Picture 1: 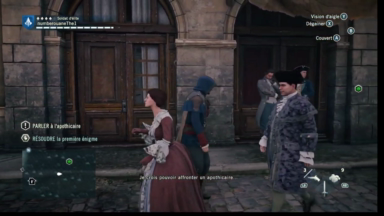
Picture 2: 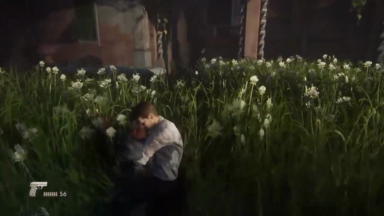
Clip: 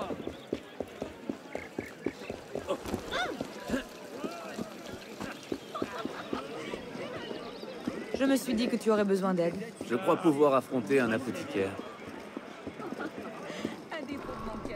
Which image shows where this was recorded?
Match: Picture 1